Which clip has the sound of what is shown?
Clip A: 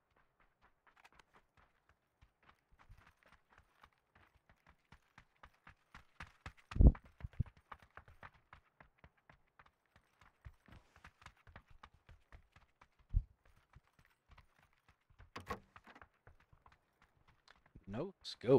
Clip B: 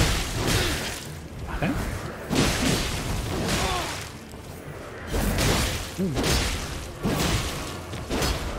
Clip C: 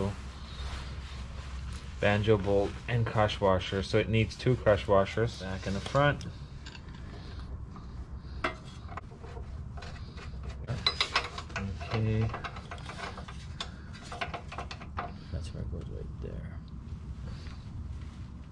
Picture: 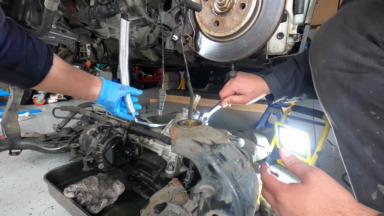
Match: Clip C